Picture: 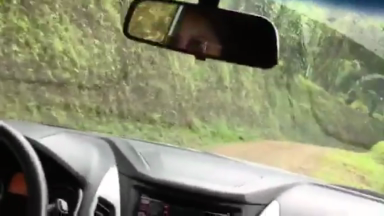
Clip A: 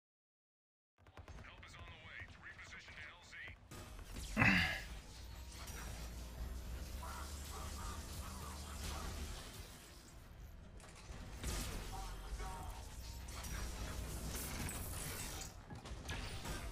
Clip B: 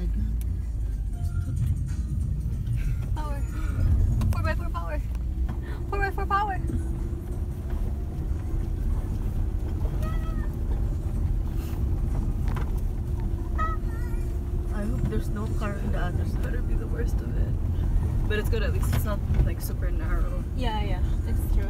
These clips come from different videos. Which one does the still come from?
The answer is B